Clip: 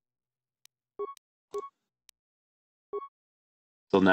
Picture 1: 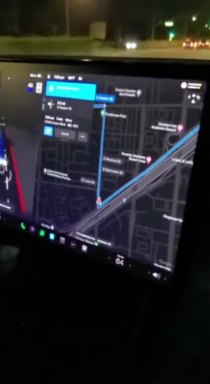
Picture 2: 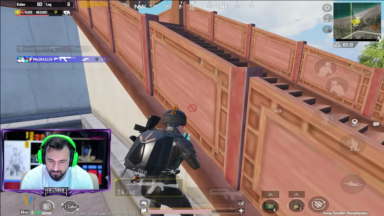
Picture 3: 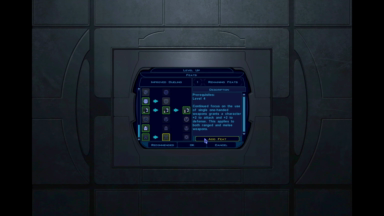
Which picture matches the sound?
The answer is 3